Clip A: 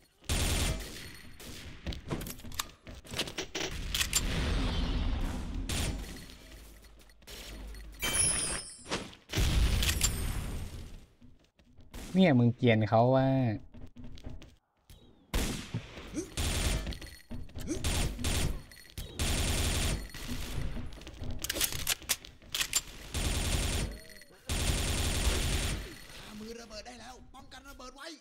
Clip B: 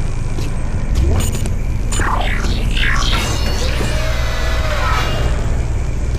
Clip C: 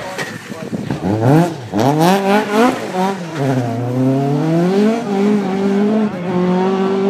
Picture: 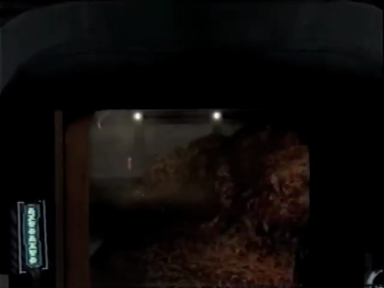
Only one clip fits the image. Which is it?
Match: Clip B